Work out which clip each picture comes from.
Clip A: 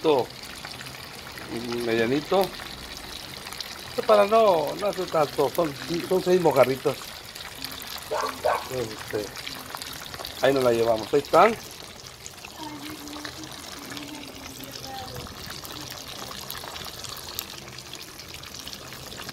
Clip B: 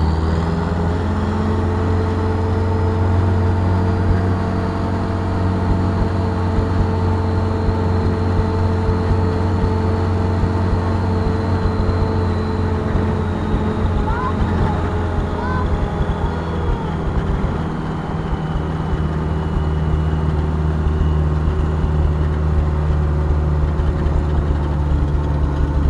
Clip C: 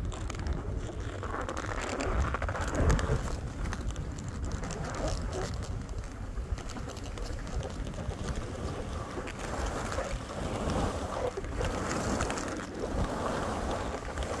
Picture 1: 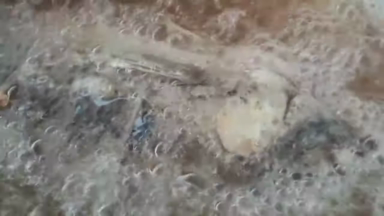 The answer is A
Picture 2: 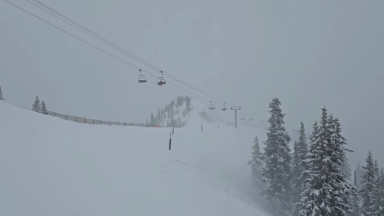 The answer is C